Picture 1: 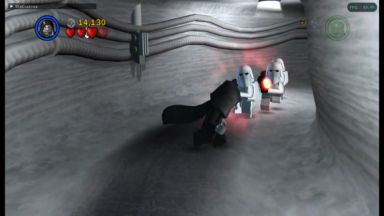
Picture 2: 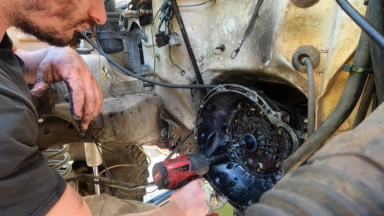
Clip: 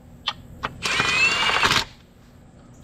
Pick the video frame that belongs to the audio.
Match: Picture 2